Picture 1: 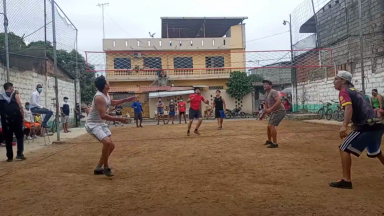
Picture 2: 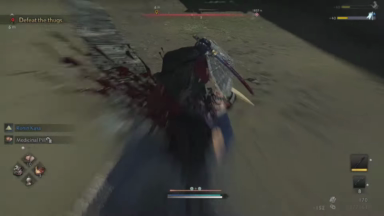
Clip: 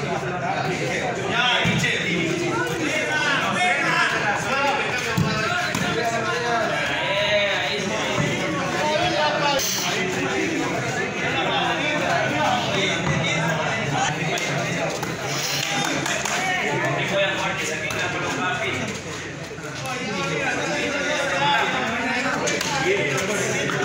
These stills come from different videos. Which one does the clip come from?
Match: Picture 1